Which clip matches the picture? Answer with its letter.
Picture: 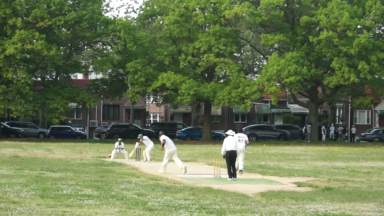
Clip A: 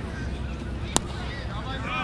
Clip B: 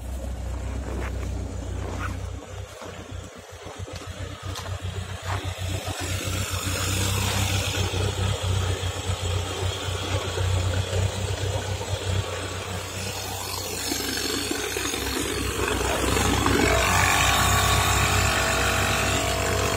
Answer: A